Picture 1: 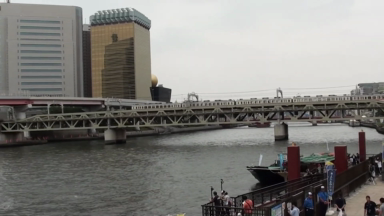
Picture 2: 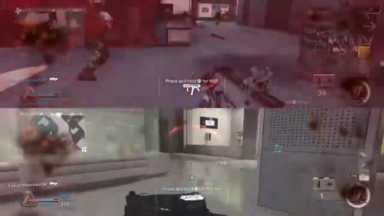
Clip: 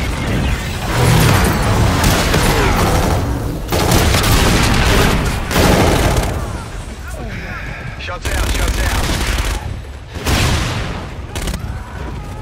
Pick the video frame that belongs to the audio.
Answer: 2